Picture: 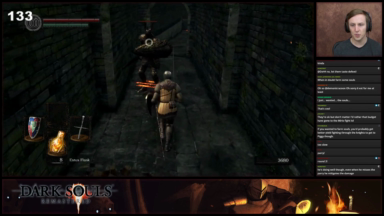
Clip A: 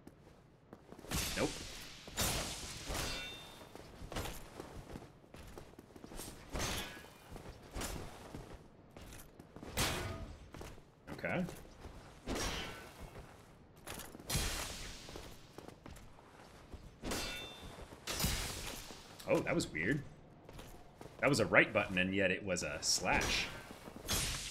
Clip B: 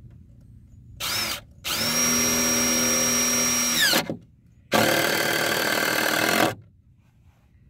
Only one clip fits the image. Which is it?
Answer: A